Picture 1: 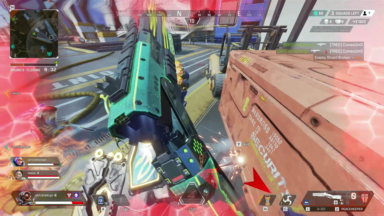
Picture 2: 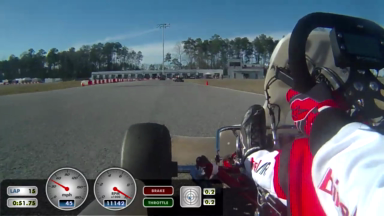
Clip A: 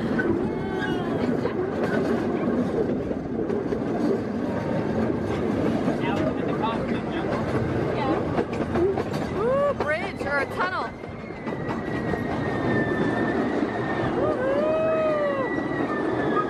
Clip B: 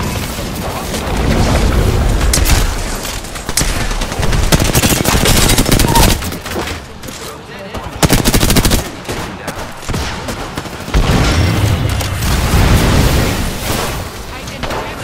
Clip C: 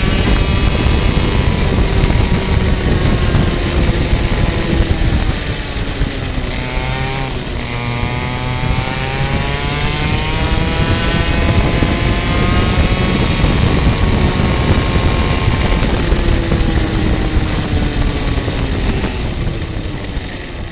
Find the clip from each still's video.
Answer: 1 B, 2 C